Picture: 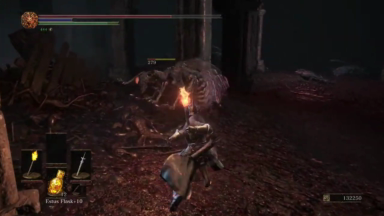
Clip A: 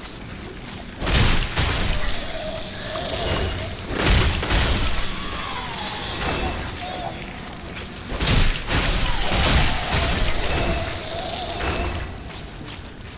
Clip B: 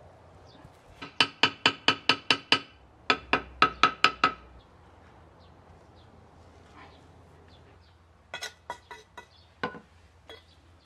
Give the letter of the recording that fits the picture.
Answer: A